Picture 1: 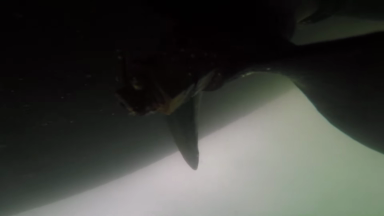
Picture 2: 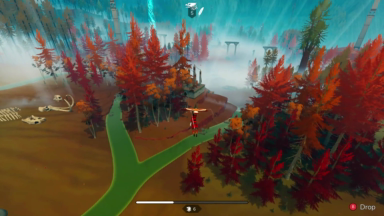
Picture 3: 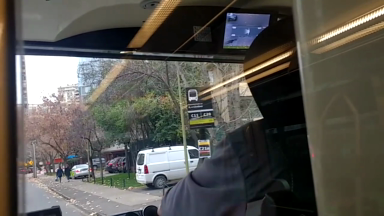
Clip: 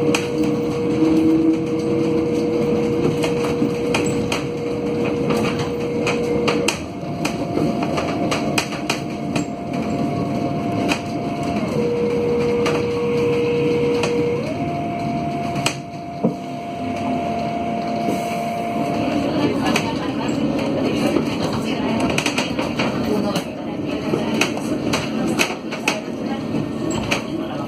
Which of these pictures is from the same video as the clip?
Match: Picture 3